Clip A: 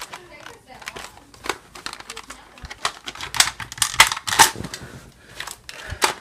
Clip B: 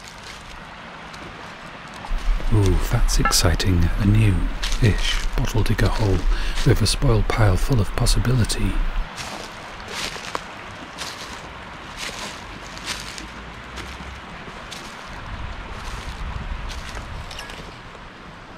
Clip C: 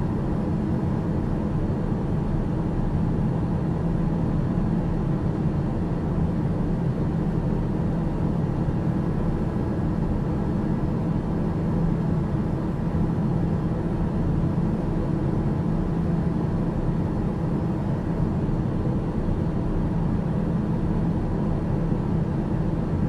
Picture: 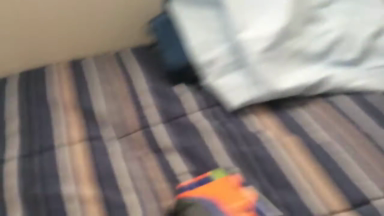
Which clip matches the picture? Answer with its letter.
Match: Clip A